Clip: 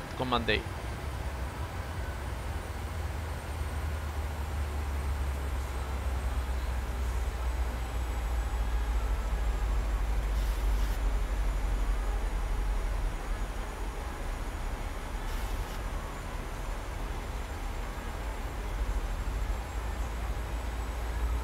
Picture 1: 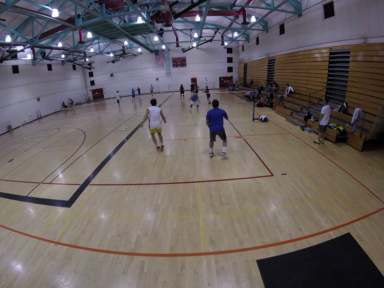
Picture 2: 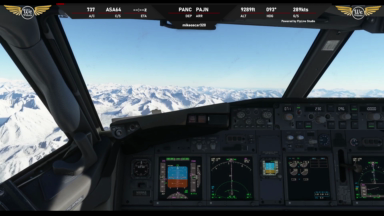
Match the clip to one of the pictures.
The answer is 2